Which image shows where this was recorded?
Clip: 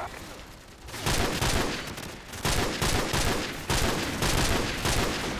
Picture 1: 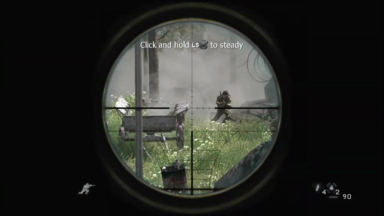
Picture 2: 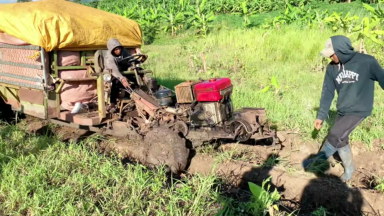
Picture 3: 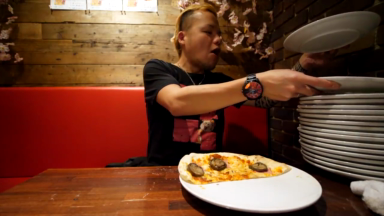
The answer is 1